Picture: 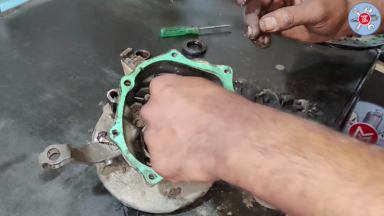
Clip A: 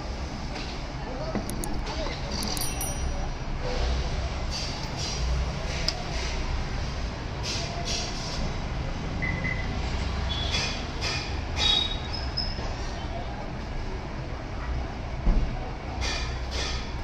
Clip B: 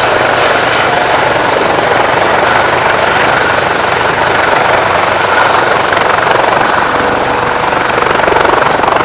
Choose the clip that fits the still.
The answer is A